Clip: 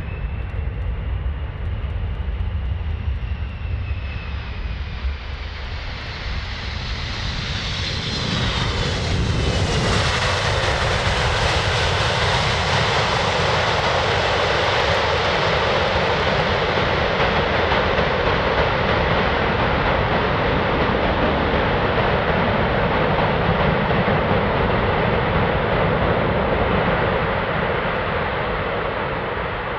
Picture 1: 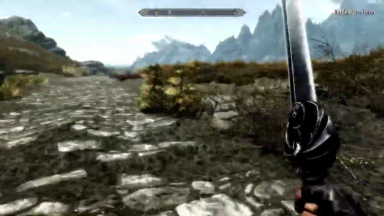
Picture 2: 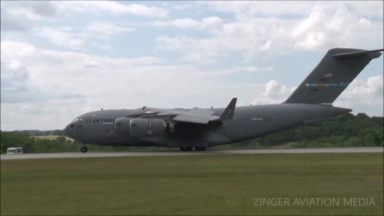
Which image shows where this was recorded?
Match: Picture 2